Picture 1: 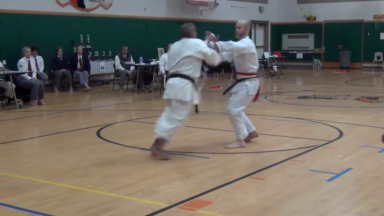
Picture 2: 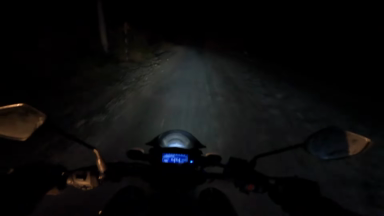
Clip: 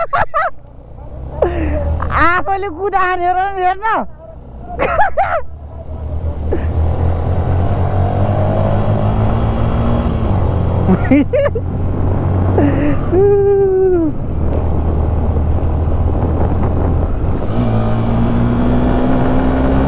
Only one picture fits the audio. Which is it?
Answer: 2